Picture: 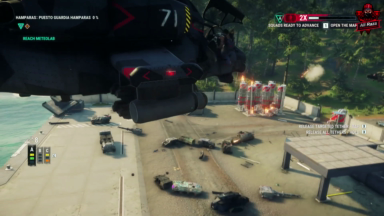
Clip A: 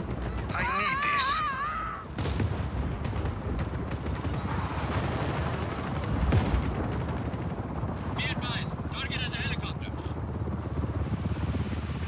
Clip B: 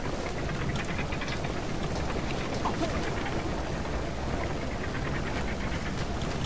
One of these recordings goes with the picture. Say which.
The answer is A